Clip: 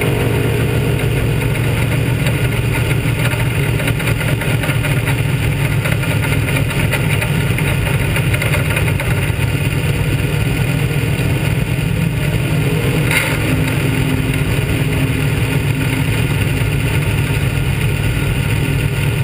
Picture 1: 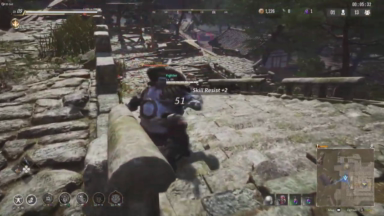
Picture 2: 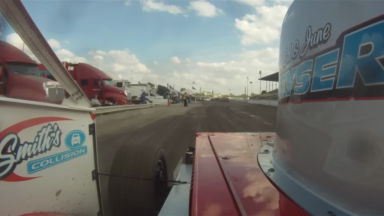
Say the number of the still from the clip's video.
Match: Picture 2